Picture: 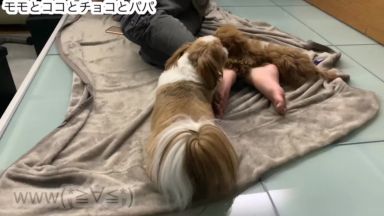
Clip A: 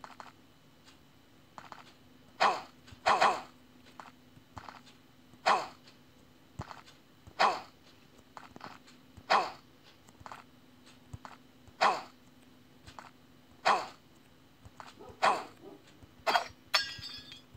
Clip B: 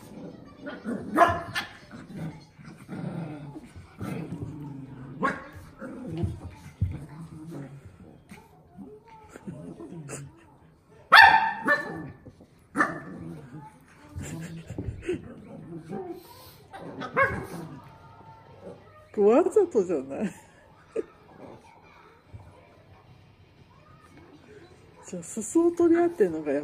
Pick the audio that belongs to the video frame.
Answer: B